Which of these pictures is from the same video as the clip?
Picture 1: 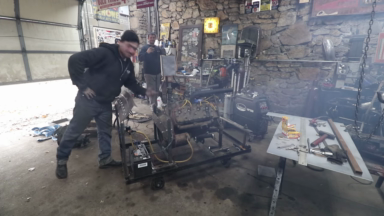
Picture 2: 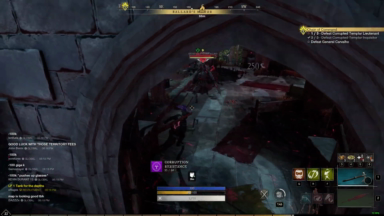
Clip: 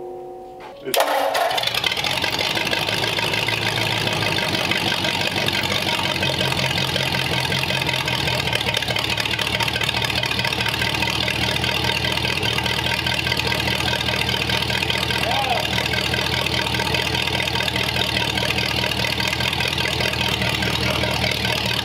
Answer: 1